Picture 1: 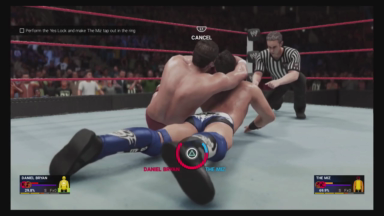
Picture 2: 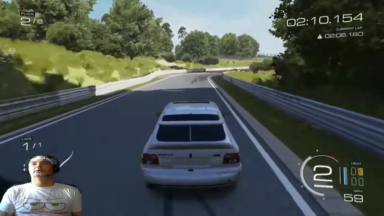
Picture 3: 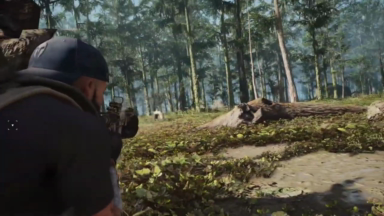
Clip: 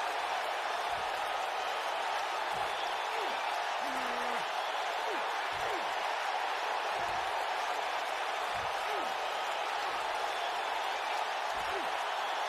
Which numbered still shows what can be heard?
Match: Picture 1